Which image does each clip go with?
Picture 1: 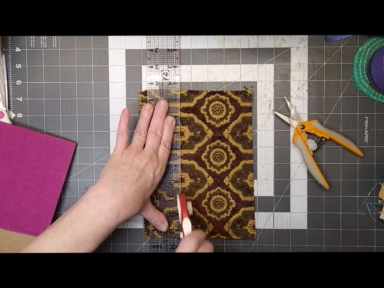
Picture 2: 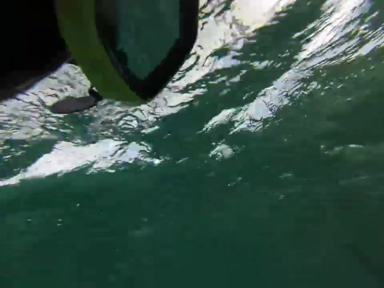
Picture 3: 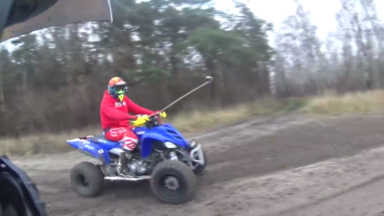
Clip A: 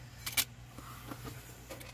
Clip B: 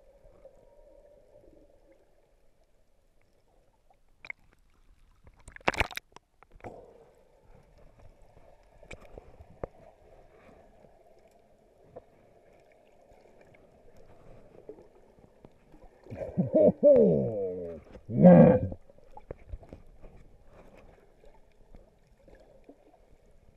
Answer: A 1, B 2